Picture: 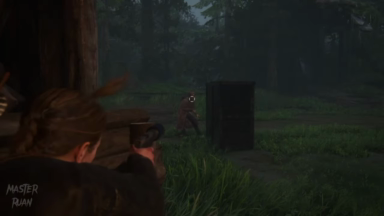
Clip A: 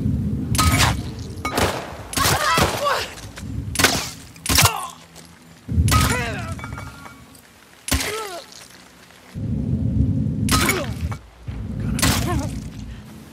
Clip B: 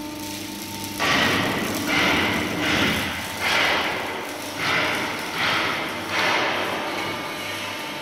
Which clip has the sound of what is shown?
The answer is A